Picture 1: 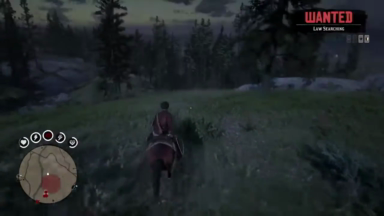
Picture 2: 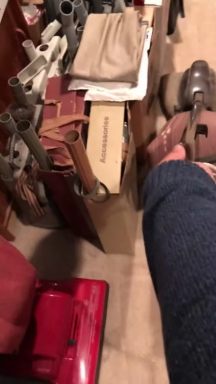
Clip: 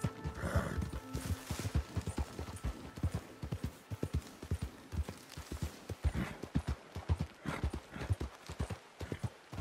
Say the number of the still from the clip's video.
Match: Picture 1